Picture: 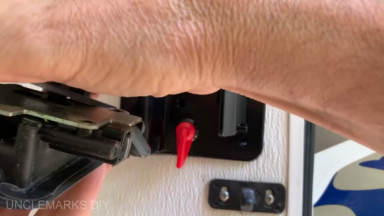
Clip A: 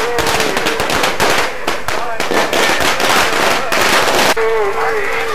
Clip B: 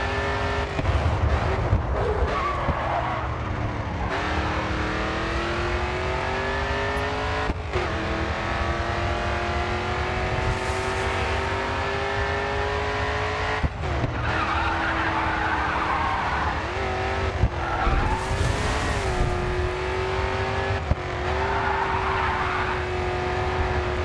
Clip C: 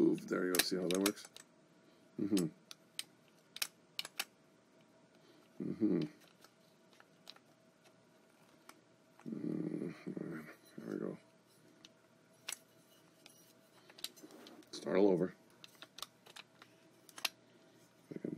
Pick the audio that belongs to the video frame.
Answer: C